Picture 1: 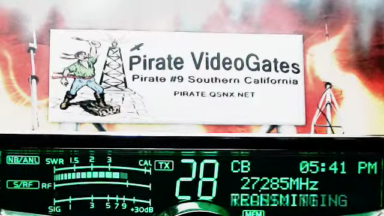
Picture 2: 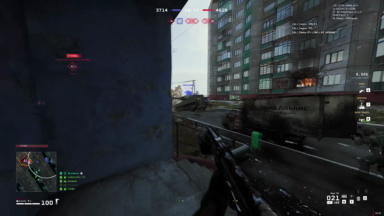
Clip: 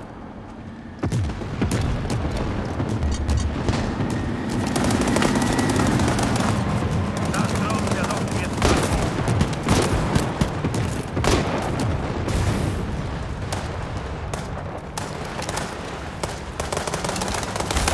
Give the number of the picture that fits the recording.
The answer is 2